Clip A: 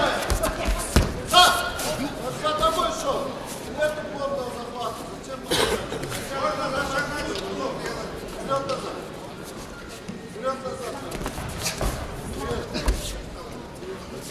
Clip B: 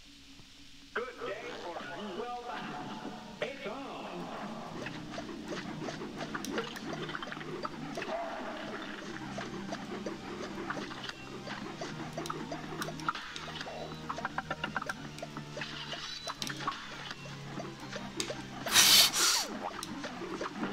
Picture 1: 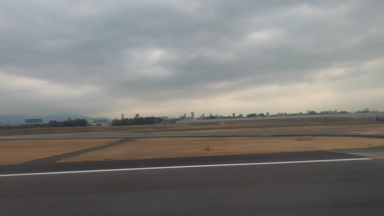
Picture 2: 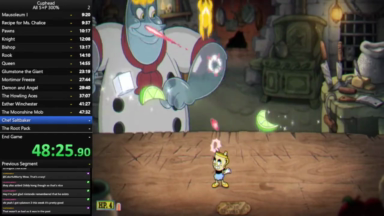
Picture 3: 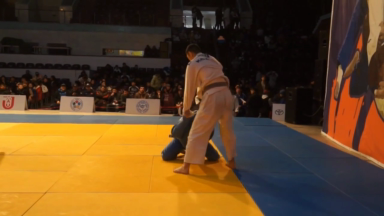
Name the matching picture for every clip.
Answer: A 3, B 2